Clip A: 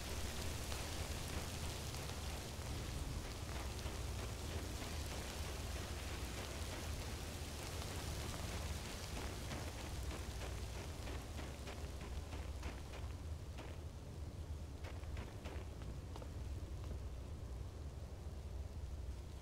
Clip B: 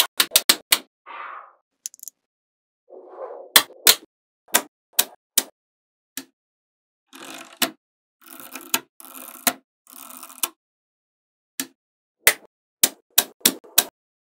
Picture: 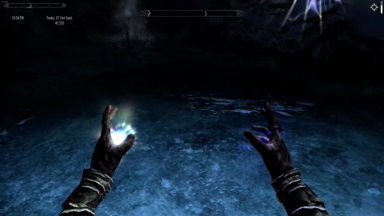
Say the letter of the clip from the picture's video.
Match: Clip A